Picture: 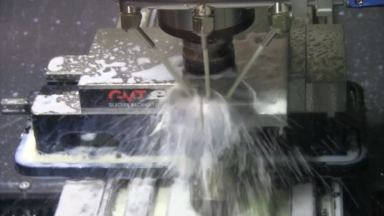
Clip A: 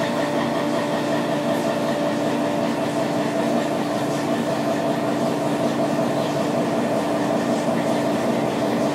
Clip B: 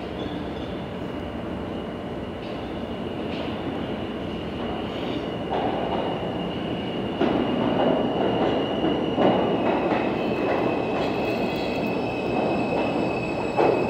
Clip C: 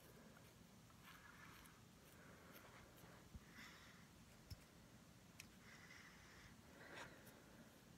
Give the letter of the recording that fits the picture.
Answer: A